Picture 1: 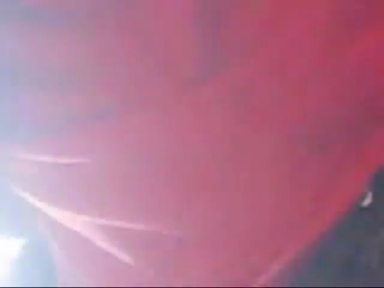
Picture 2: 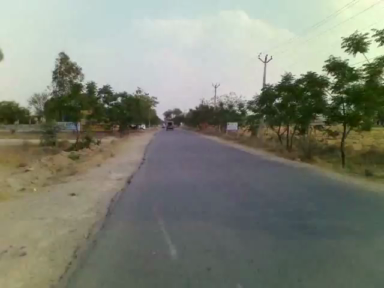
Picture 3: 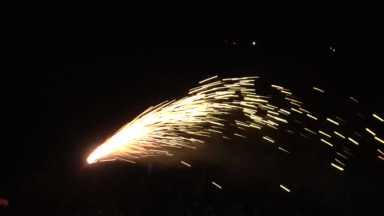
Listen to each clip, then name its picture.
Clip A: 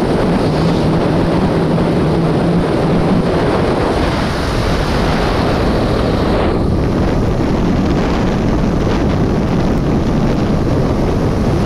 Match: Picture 2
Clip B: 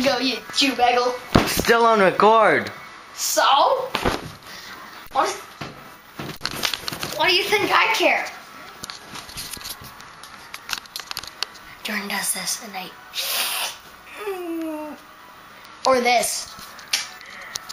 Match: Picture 1